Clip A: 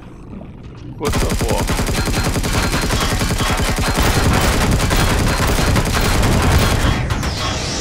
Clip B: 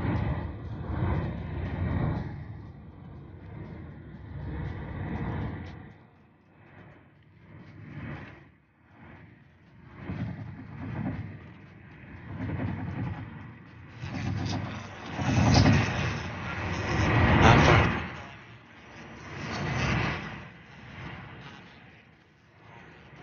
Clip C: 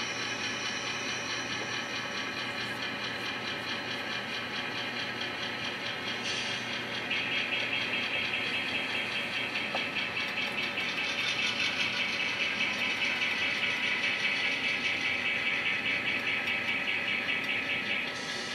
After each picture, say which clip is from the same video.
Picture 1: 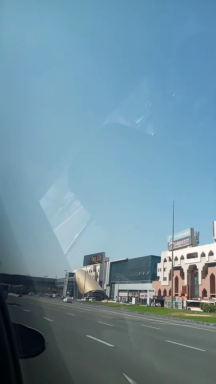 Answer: B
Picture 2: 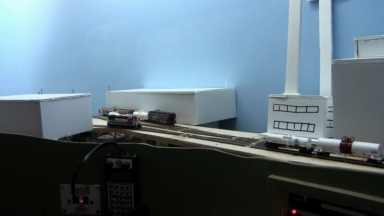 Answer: C